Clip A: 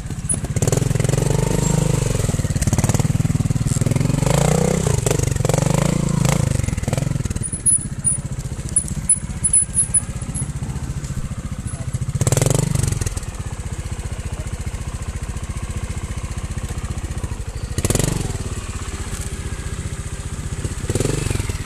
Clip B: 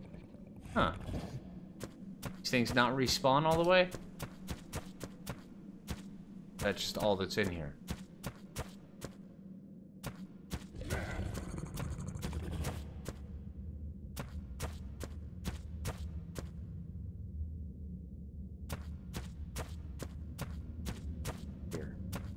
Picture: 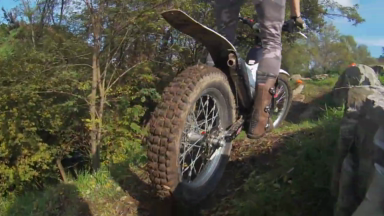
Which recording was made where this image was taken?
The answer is A